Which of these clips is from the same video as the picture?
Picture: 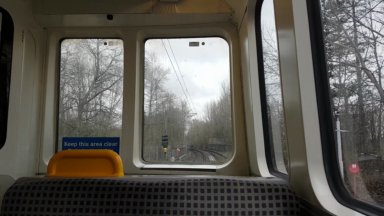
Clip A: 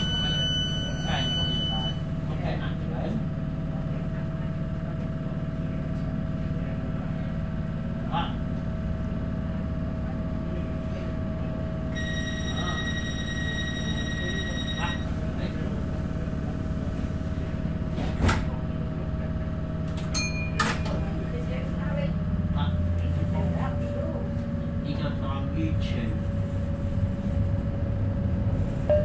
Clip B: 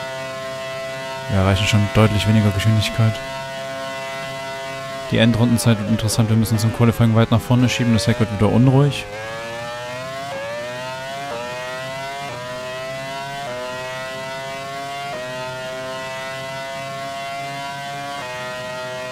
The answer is A